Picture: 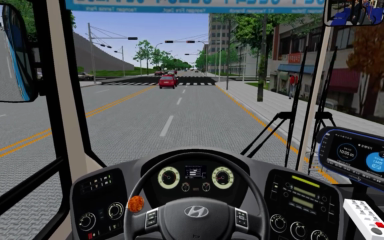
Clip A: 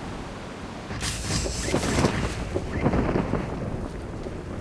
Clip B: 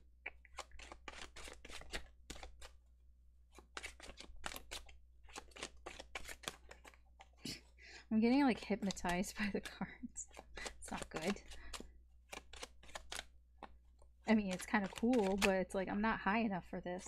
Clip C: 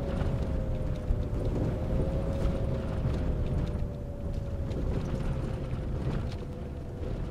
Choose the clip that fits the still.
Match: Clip C